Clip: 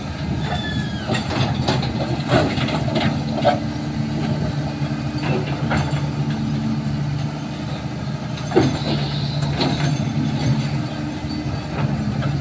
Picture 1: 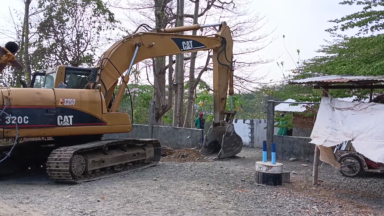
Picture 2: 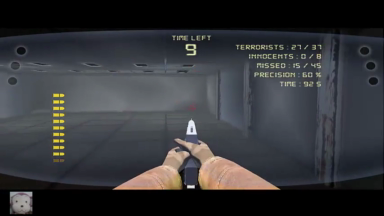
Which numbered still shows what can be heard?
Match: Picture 1